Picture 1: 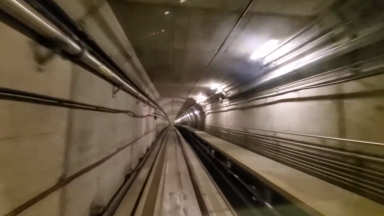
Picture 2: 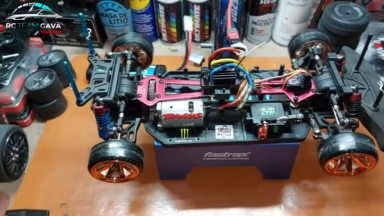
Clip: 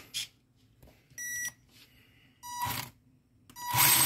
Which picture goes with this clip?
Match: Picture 2